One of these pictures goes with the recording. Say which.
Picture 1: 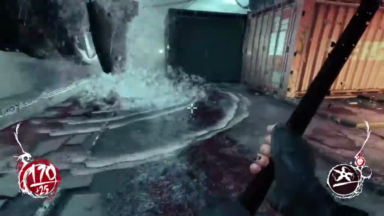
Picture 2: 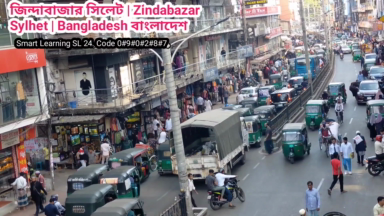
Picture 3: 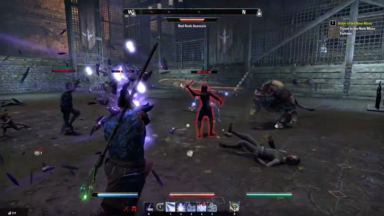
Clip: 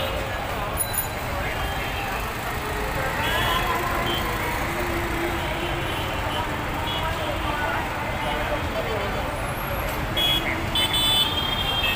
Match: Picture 2